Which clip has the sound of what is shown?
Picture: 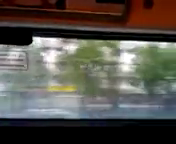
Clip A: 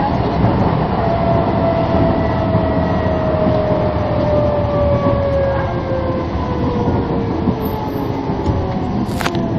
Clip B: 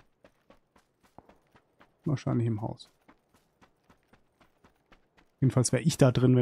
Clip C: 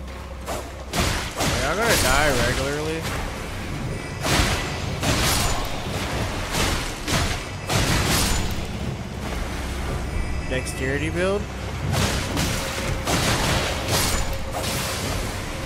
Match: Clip A